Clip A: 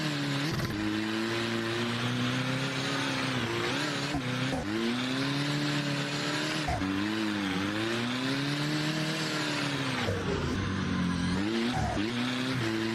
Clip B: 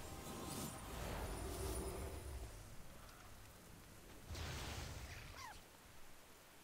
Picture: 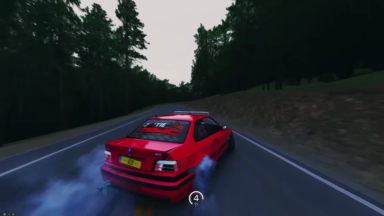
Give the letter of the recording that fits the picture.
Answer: A